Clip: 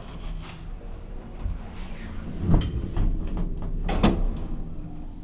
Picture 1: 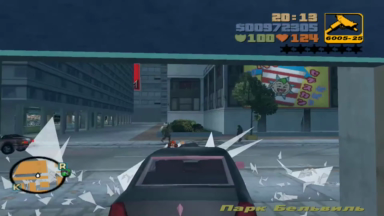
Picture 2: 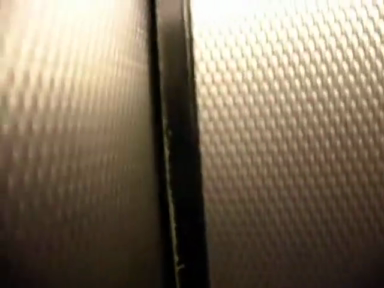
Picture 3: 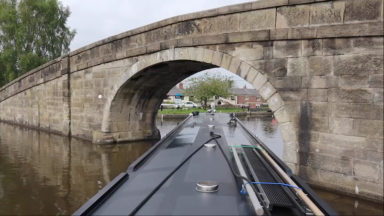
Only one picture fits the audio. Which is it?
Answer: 2